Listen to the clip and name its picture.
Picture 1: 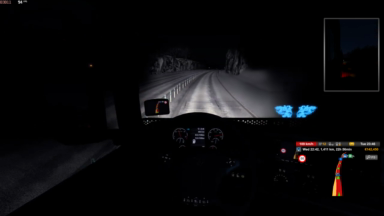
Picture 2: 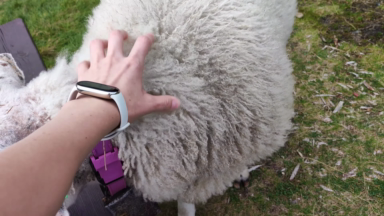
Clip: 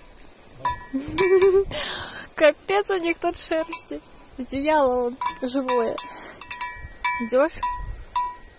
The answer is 2